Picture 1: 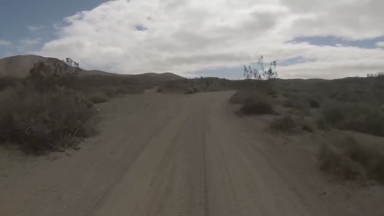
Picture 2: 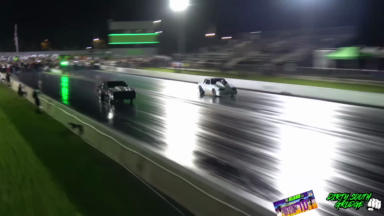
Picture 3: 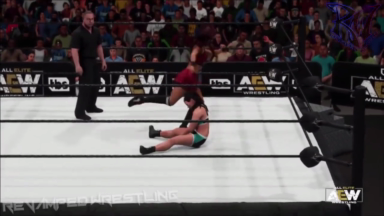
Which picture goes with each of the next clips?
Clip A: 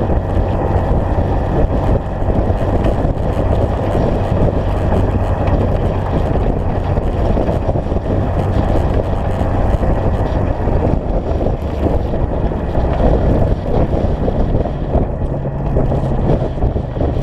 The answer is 1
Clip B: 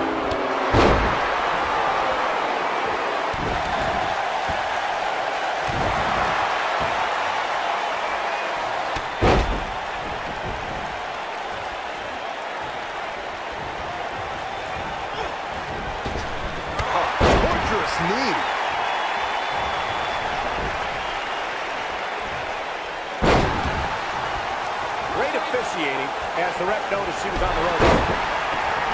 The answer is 3